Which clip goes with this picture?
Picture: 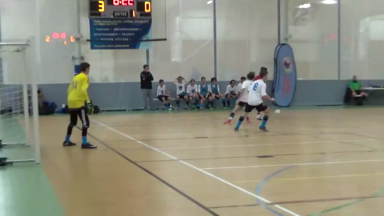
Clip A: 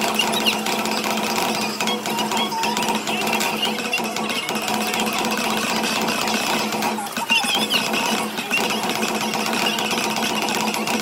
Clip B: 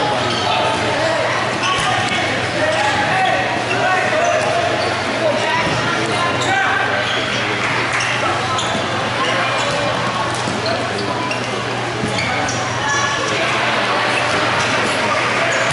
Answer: B